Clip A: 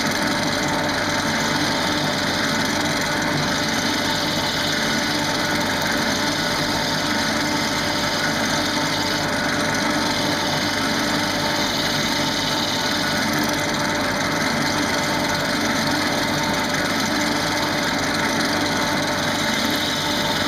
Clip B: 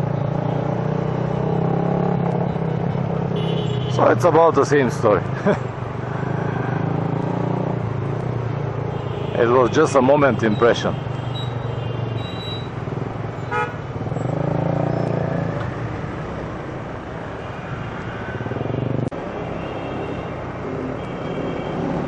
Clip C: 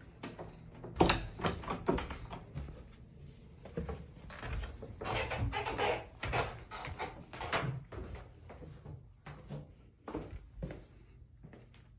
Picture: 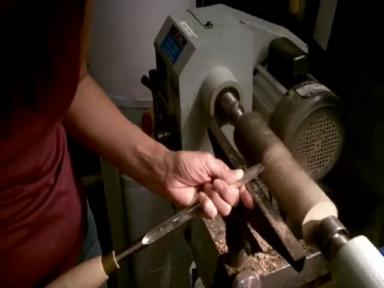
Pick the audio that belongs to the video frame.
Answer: A